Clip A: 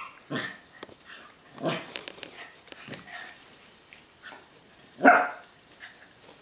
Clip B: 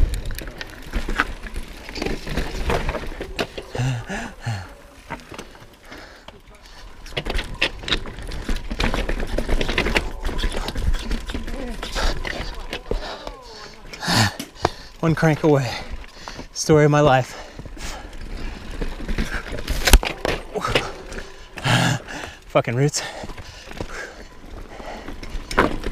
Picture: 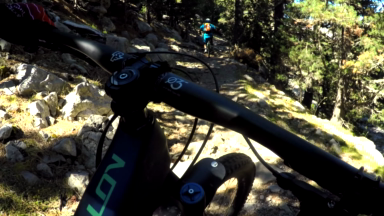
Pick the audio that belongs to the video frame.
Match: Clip B